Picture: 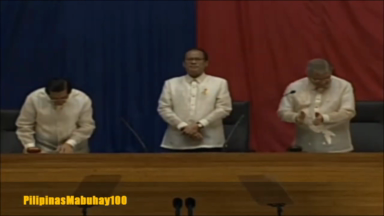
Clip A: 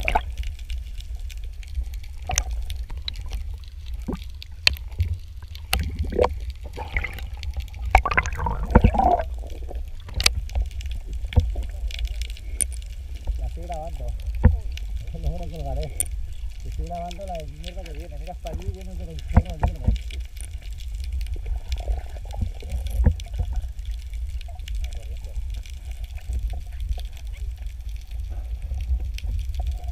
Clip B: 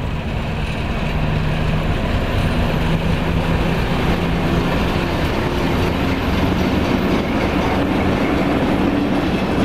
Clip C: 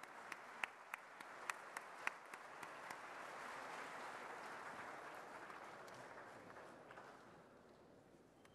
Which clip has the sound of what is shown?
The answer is C